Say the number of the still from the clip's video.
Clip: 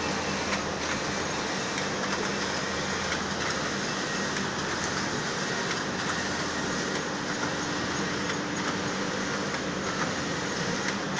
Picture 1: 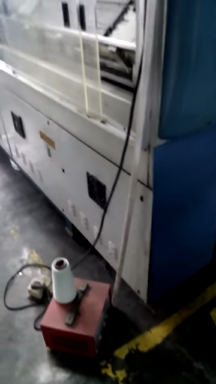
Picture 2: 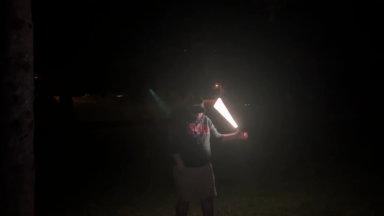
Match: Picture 1